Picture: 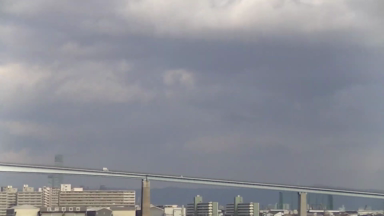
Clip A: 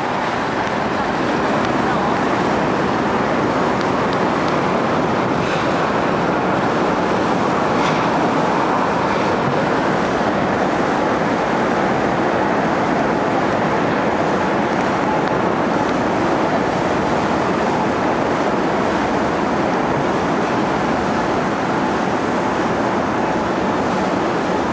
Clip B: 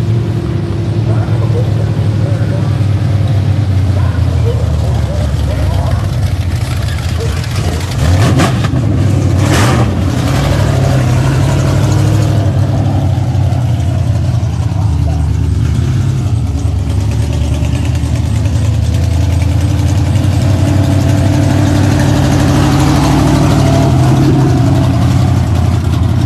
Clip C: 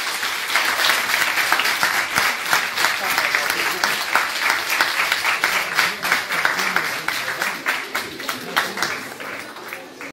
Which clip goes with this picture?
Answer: A